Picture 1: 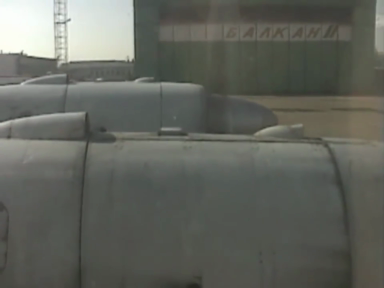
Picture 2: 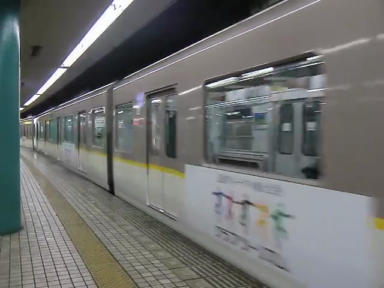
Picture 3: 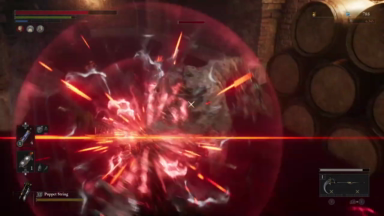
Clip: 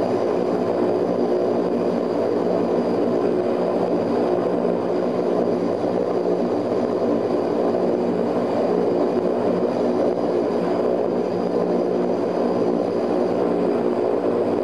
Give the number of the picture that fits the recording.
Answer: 1